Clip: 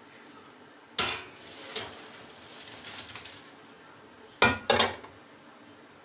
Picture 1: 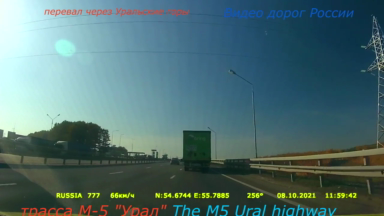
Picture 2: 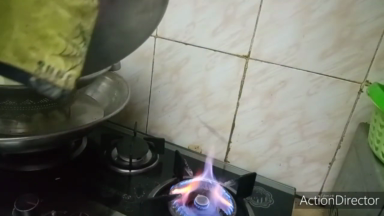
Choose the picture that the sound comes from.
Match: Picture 2